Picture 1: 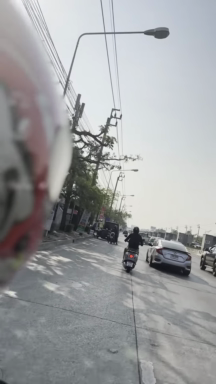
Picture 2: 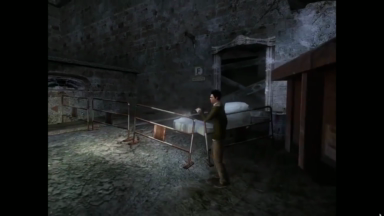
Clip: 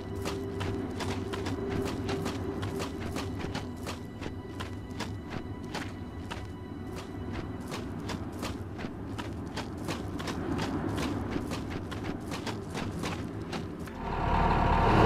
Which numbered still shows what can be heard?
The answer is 2